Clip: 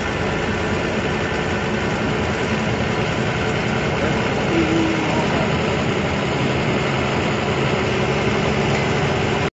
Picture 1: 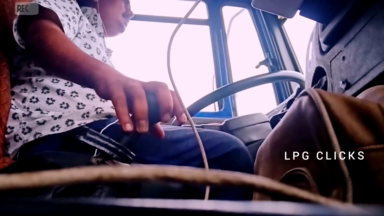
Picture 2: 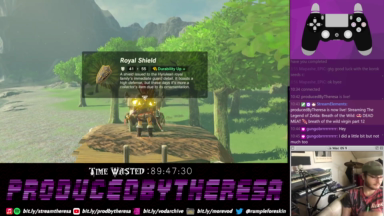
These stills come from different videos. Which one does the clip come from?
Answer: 1